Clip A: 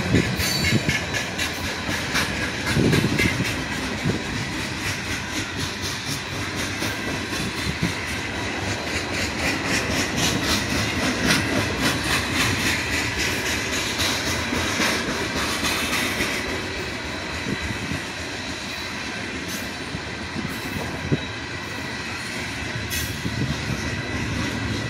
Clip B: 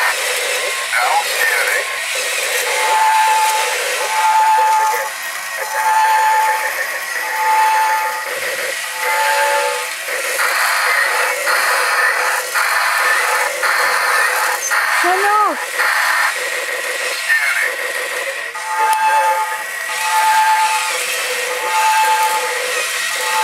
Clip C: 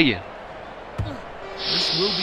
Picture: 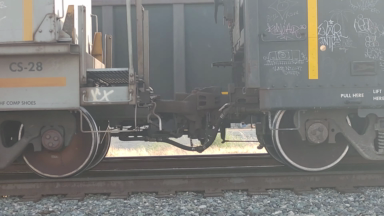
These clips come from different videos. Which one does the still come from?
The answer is A